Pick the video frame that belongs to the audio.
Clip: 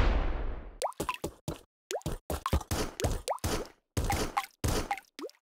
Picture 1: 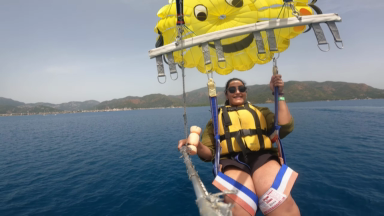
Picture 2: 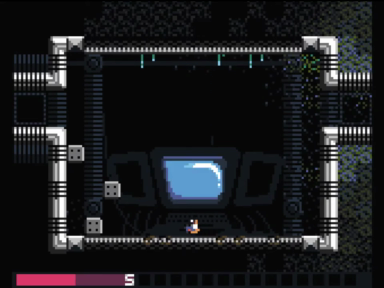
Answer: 2